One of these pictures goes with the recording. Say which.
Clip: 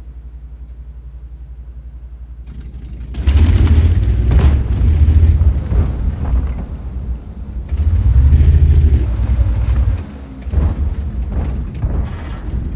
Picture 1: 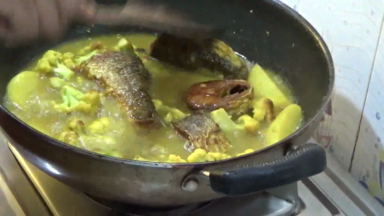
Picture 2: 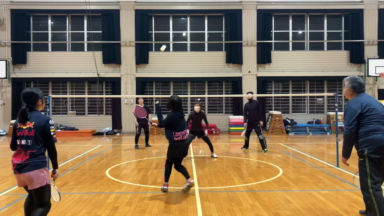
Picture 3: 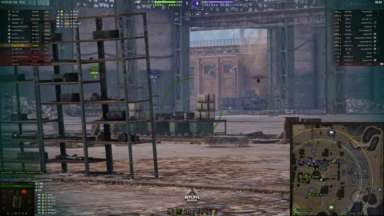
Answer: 3